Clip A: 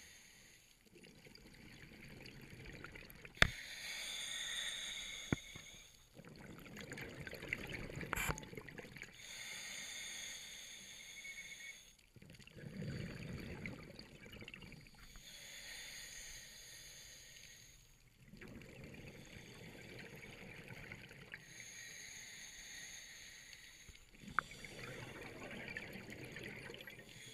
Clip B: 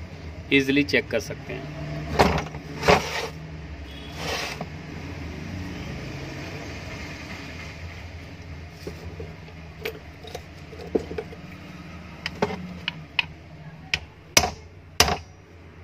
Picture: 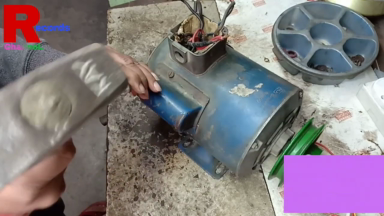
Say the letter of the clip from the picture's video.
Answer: B